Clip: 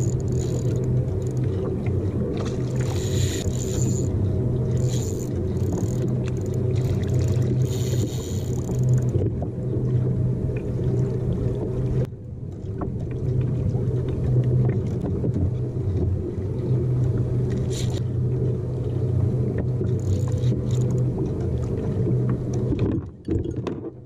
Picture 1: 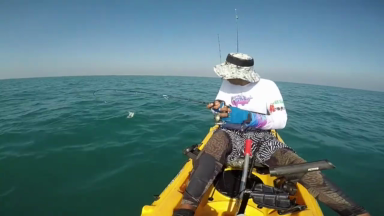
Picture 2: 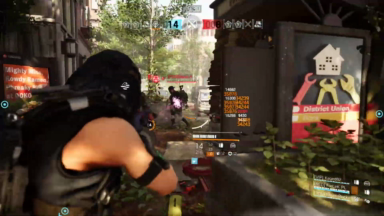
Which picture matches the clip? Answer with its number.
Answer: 1